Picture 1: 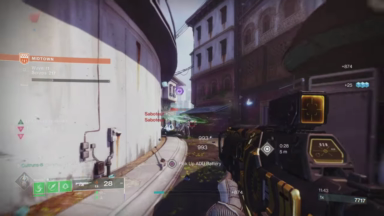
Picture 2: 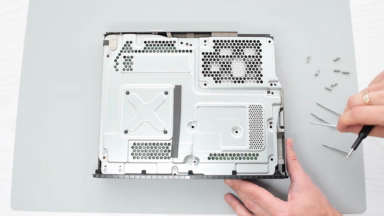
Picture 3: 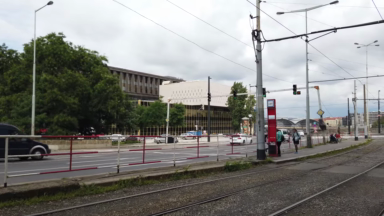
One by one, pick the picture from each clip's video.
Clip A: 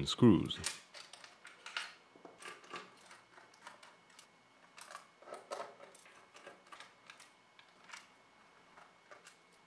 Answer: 2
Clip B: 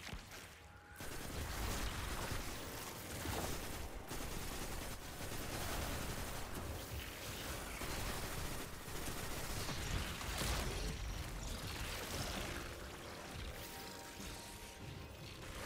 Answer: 1